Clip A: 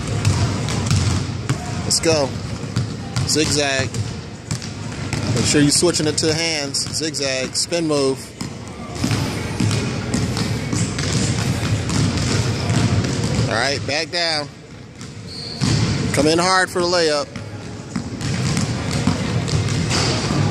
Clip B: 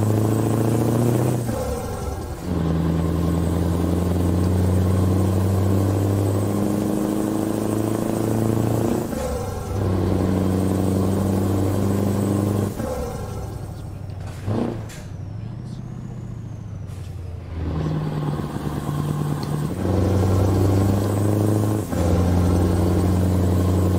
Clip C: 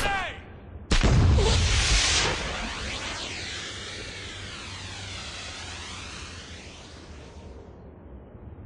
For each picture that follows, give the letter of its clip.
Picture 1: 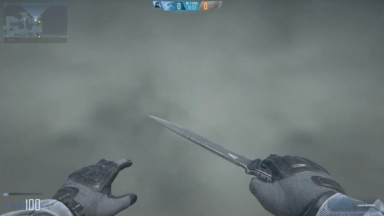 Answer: C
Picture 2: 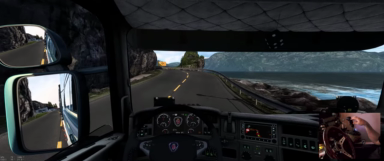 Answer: B